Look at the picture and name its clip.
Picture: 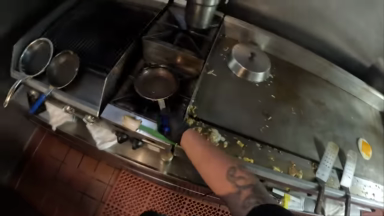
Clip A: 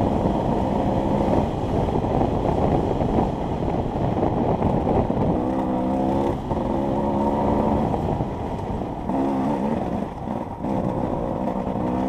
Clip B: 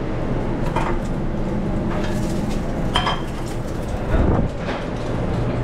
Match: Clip B